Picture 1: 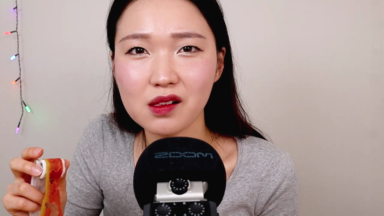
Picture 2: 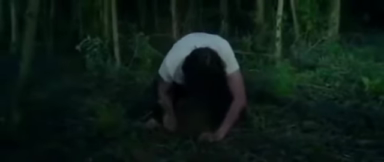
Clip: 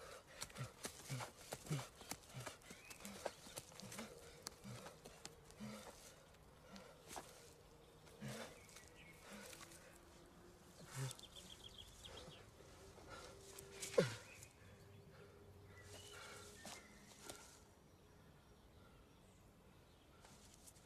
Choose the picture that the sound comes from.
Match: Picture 2